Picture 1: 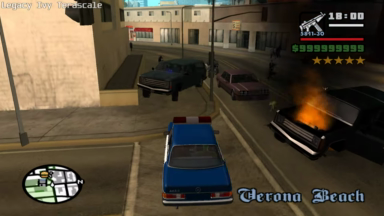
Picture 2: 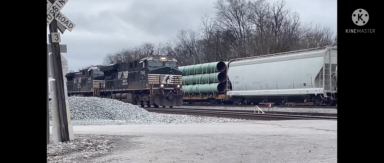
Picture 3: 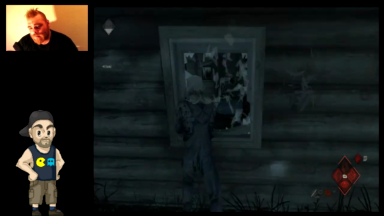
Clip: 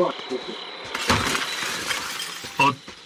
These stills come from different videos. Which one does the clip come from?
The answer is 3